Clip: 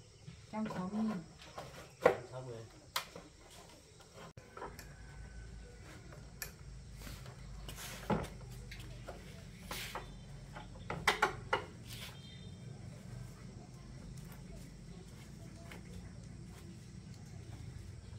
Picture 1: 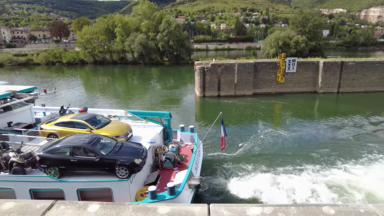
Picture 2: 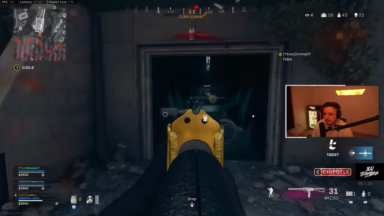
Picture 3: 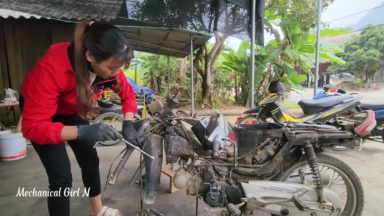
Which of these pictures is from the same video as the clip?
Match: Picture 3